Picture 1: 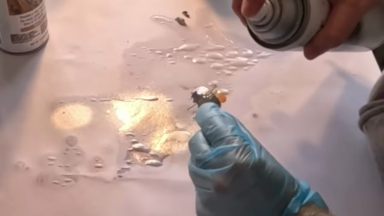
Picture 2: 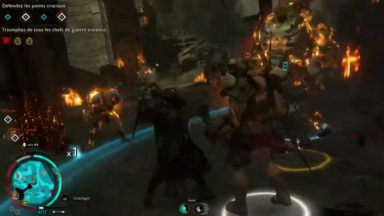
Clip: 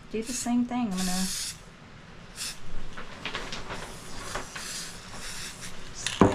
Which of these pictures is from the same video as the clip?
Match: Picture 1